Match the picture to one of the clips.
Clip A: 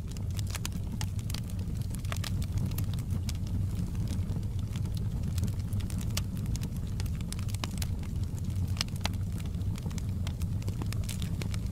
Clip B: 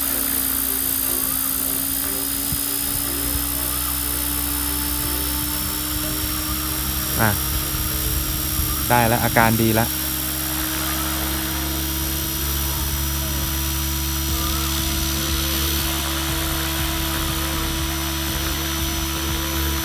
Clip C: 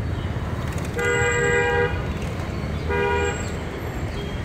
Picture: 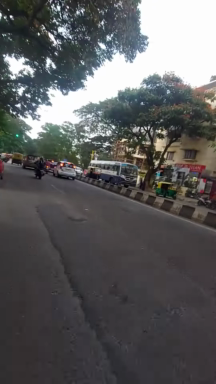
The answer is C